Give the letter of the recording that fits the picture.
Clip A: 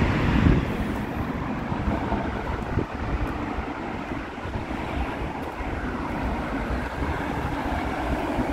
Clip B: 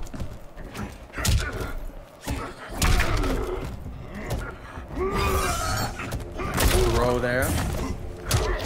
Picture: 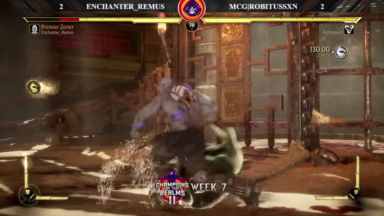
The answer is B